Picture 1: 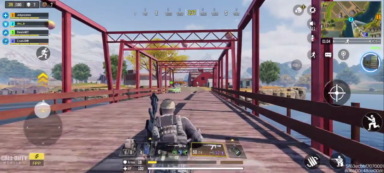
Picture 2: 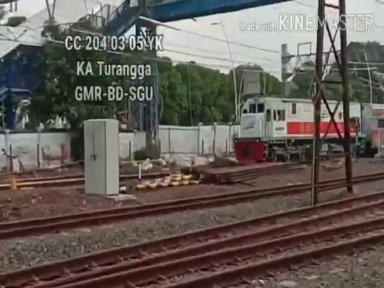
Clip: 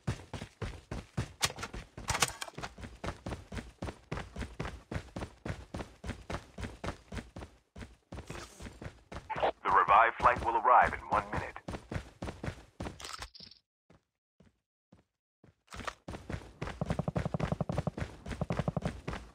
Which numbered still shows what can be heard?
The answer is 1